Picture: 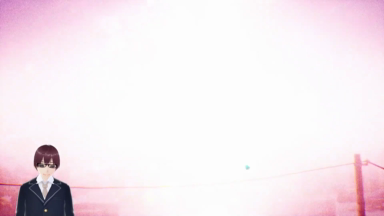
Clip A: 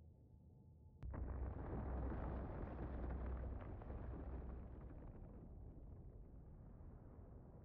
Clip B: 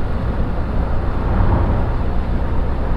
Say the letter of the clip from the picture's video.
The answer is A